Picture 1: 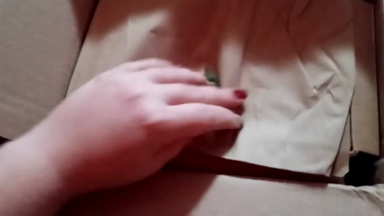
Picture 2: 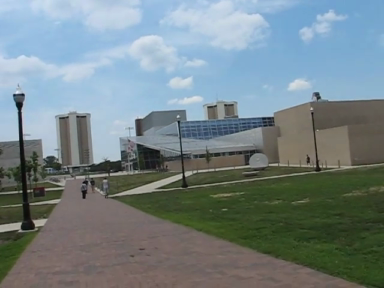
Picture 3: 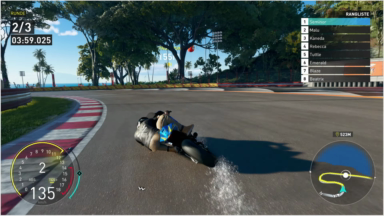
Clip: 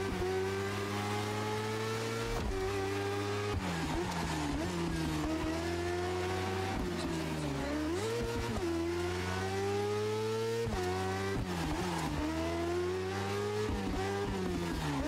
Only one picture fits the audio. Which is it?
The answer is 3